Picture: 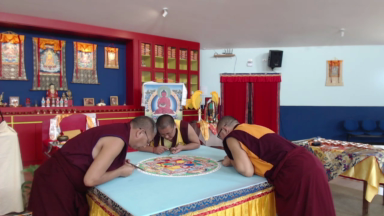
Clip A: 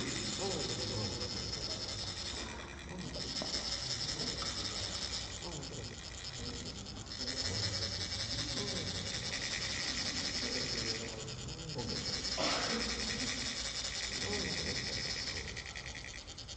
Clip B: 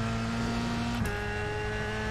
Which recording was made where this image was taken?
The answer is A